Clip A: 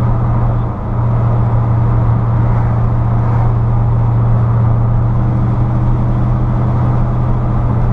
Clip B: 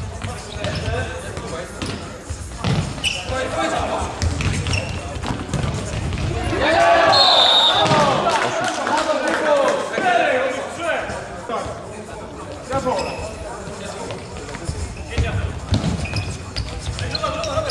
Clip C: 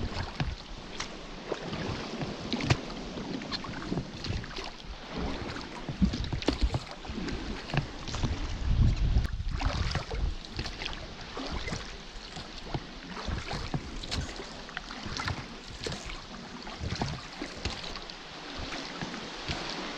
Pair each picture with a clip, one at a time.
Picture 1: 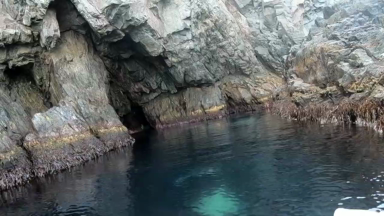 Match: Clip C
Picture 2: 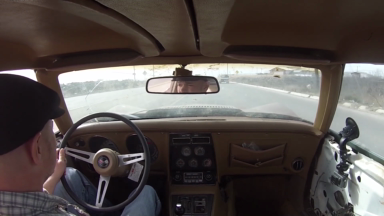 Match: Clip A